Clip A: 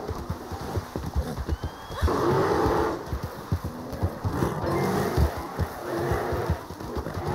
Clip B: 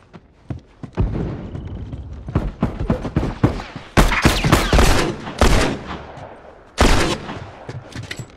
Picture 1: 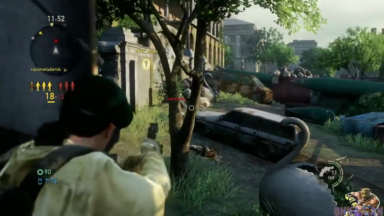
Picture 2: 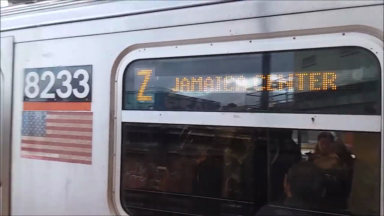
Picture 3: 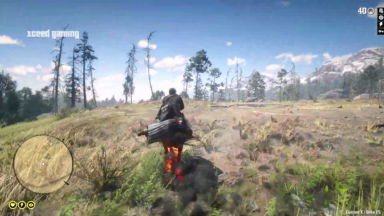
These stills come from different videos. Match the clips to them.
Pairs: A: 3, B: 1